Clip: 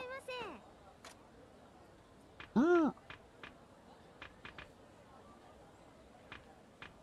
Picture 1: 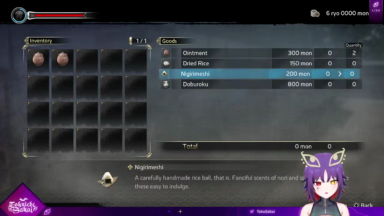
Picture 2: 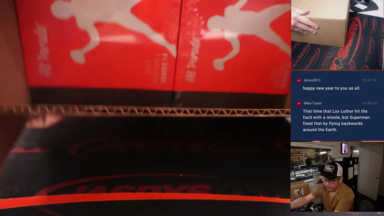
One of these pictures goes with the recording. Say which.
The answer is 1